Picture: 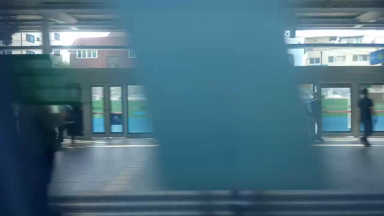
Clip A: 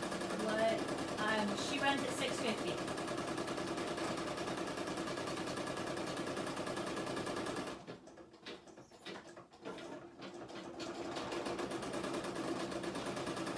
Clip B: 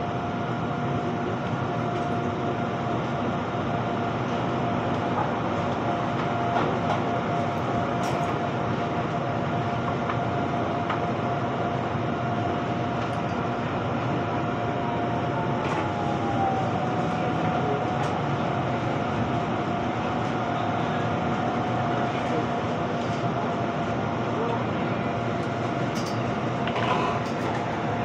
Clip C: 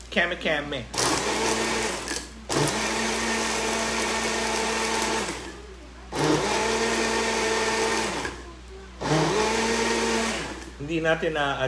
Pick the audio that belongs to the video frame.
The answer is B